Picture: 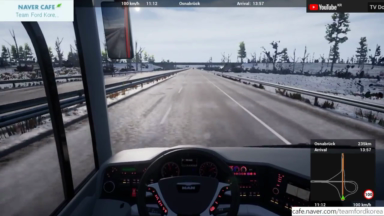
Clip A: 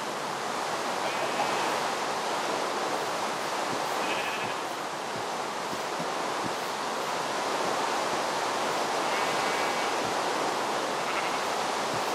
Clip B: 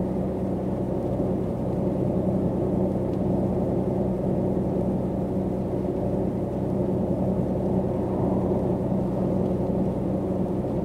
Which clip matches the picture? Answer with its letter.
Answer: B